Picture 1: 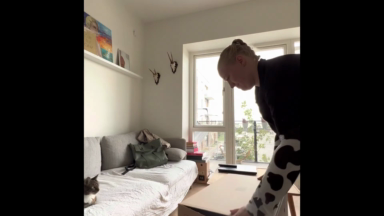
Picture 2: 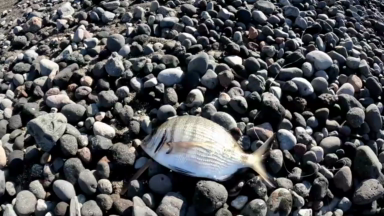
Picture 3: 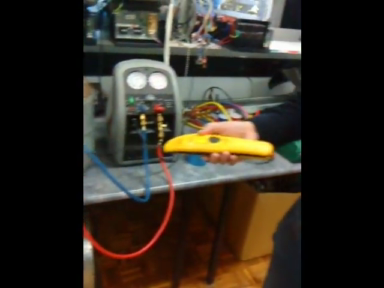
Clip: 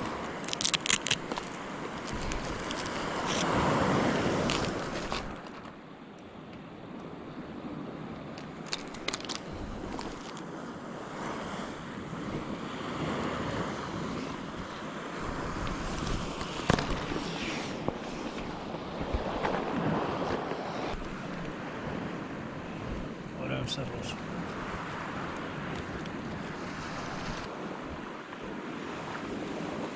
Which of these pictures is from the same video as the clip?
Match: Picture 2